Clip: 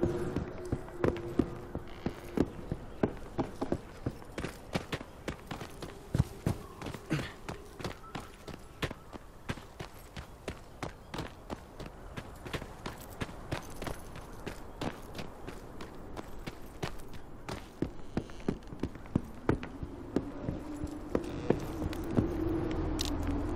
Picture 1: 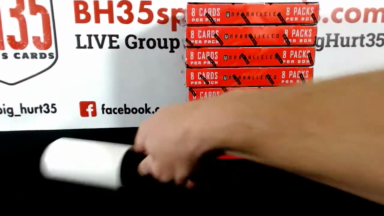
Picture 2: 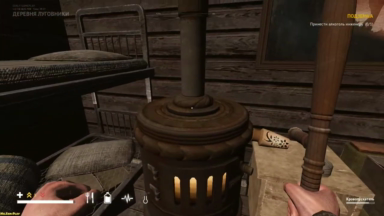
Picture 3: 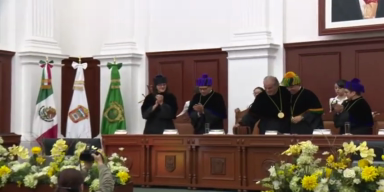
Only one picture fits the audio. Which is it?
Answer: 2